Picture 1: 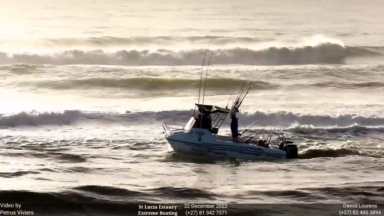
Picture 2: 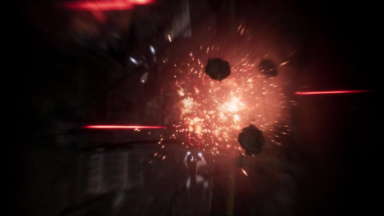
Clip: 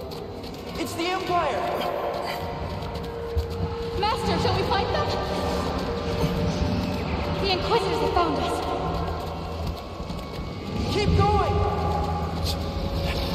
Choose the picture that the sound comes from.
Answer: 2